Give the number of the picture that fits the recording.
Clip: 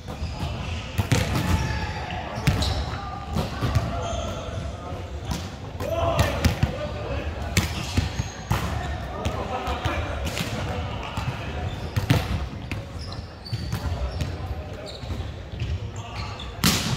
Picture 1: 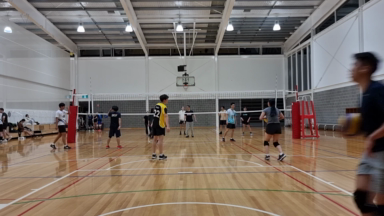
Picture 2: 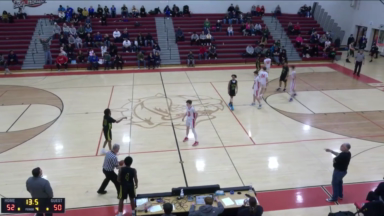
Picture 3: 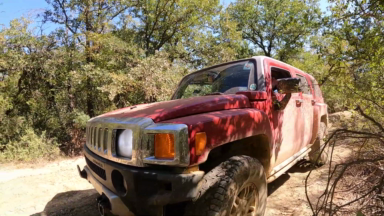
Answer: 1